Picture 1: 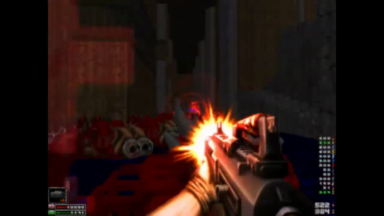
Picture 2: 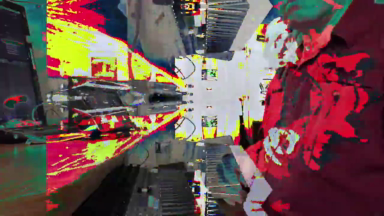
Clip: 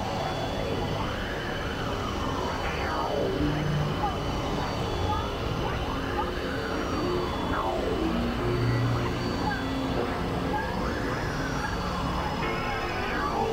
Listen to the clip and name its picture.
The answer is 2